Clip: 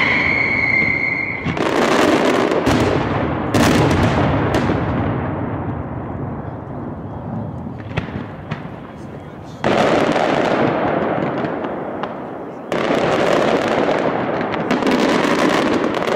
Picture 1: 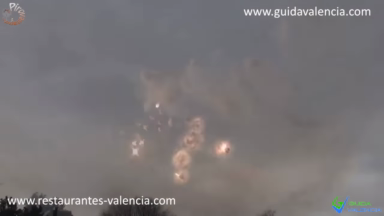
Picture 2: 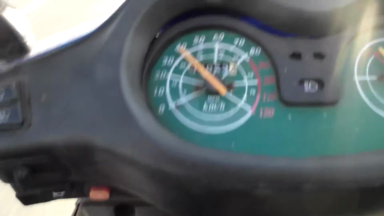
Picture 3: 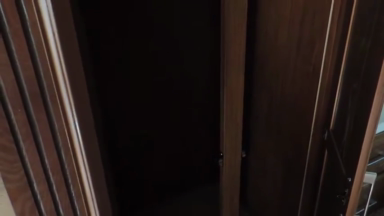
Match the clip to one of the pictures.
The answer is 1